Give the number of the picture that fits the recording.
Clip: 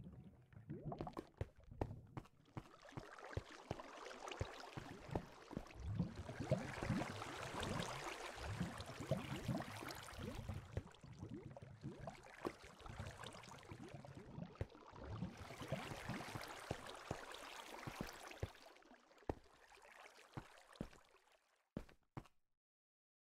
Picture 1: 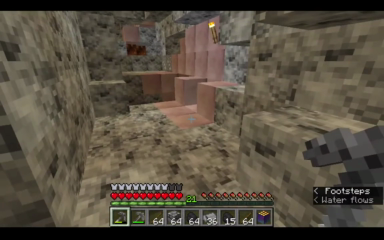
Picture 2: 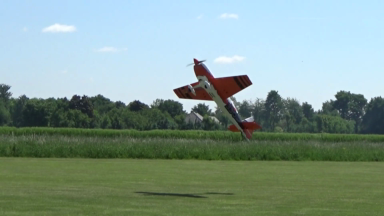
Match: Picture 1